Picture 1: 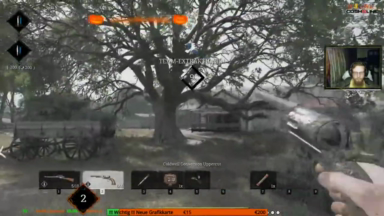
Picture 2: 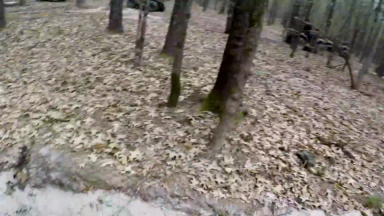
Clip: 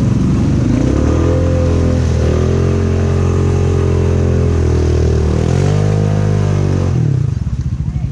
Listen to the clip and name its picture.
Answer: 2